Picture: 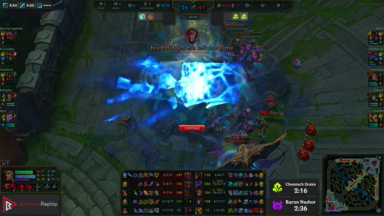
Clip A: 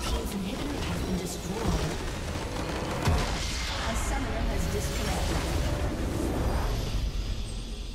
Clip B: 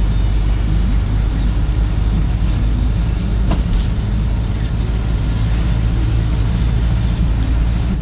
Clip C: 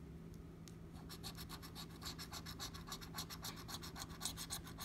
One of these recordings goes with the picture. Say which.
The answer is A